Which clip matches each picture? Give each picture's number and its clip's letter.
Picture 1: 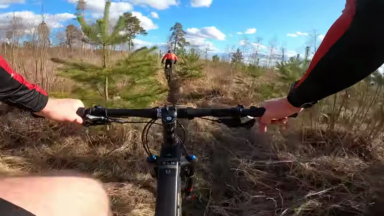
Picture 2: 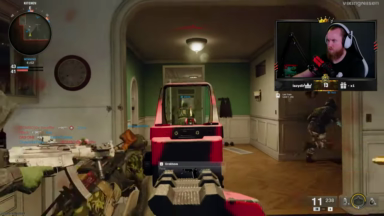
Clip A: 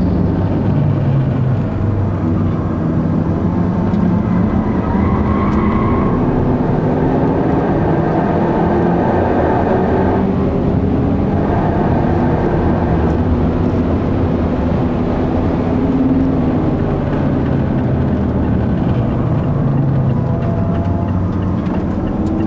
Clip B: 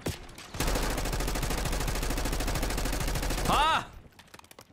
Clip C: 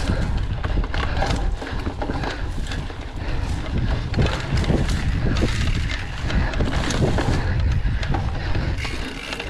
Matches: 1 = C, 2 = B